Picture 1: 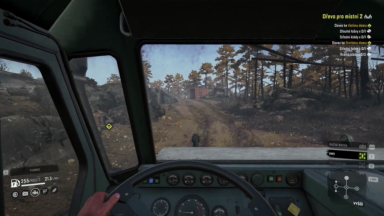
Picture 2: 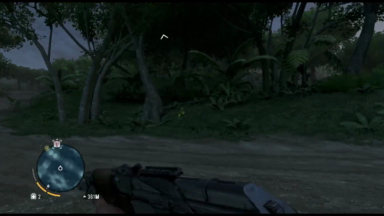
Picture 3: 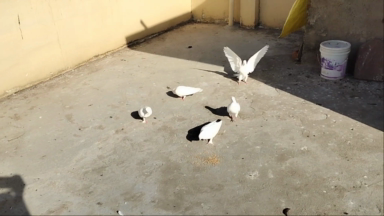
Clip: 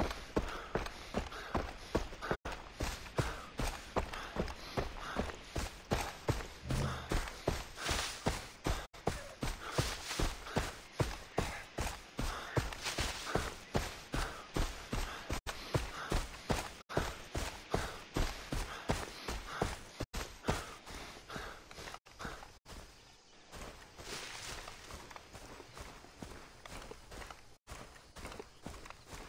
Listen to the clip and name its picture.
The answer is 2